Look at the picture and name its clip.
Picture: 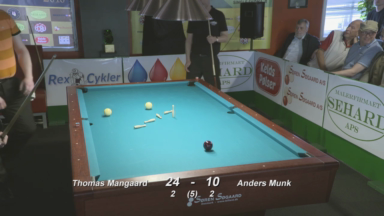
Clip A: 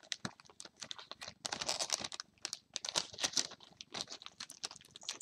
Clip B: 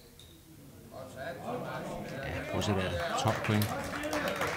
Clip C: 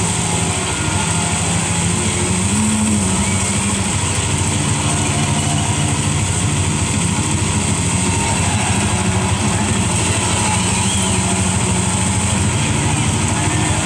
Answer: B